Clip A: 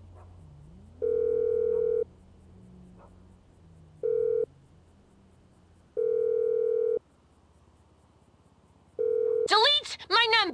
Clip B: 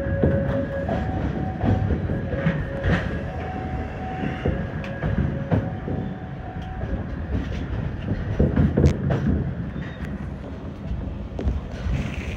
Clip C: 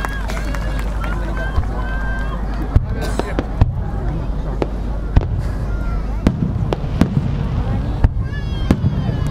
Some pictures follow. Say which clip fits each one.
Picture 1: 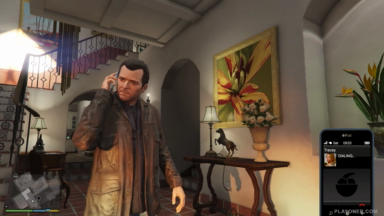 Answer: A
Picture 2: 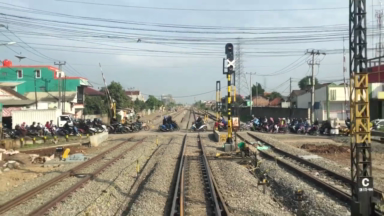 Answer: B